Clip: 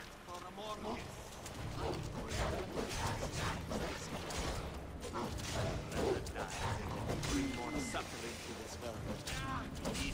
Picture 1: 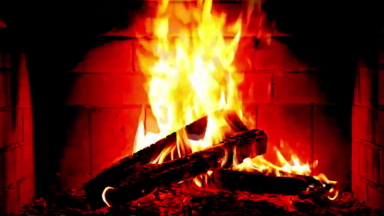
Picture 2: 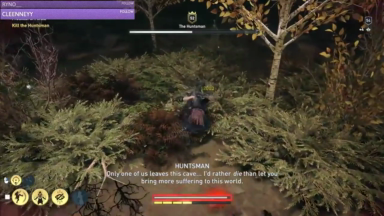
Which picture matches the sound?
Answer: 2